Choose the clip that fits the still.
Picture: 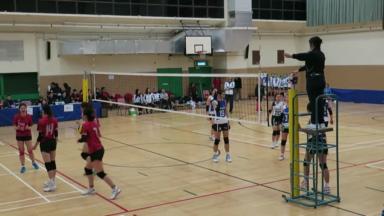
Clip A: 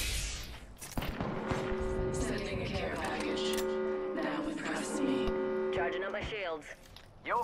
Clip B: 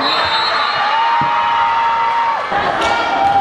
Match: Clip B